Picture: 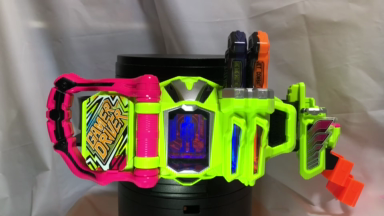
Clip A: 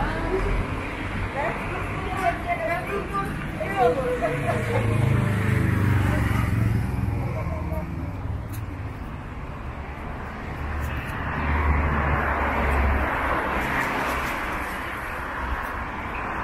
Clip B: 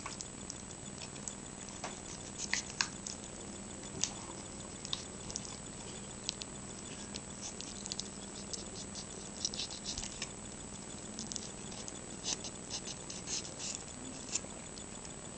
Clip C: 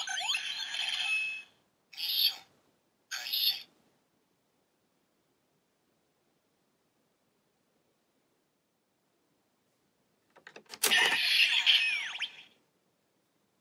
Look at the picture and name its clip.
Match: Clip C